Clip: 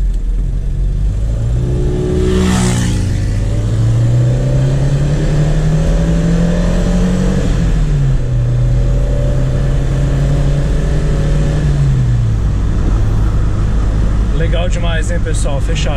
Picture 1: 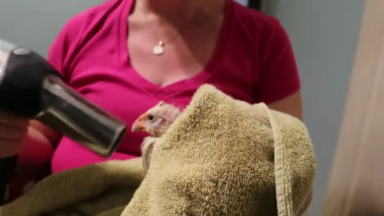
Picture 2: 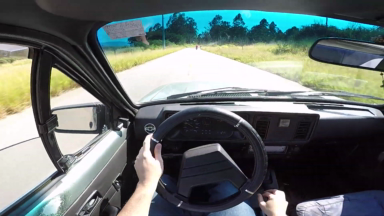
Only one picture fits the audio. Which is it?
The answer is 2